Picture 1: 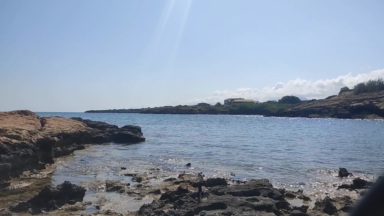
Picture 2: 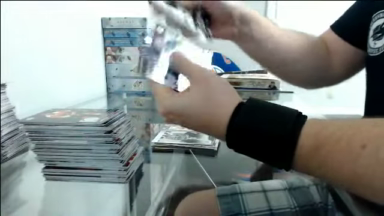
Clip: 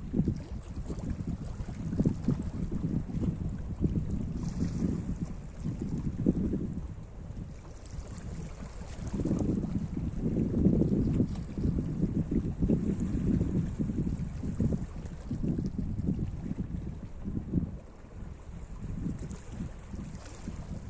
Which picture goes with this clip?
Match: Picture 1